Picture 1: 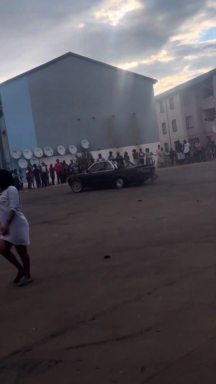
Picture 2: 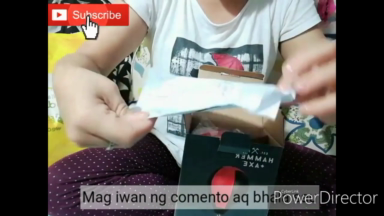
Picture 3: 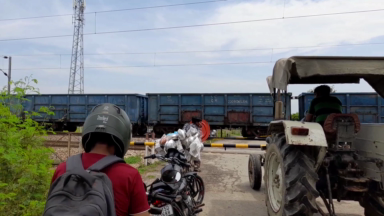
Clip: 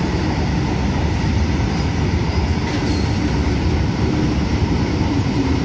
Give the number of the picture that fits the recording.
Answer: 3